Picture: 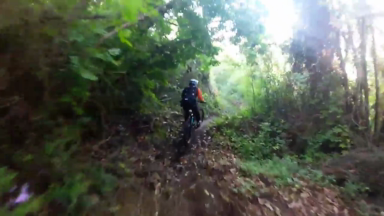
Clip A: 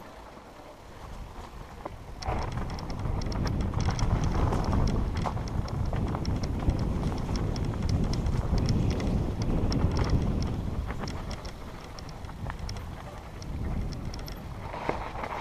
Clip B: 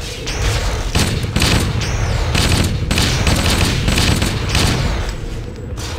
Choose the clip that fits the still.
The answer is A